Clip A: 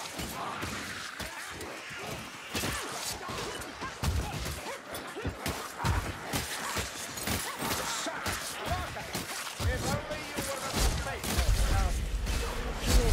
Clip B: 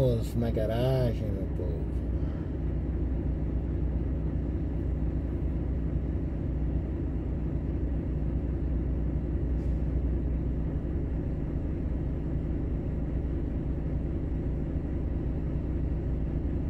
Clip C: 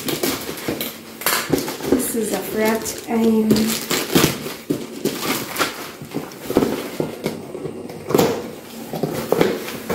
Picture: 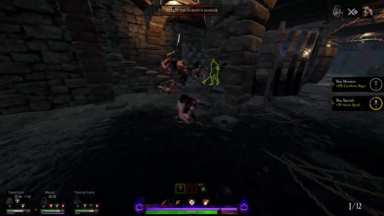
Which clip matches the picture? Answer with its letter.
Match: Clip A